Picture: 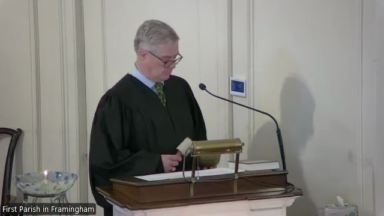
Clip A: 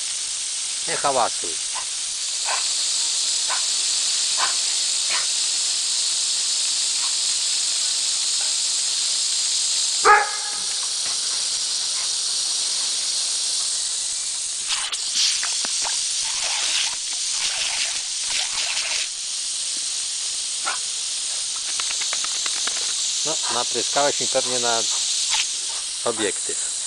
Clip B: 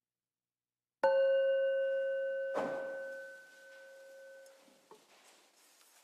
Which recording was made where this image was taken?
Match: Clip B